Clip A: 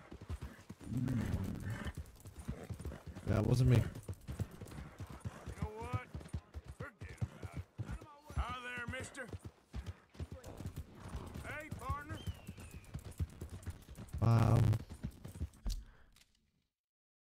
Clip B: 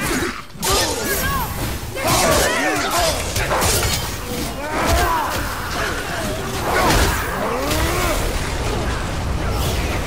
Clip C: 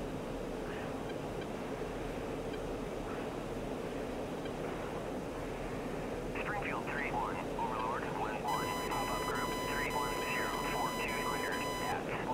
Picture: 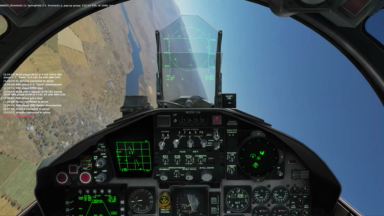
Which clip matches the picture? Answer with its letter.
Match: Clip C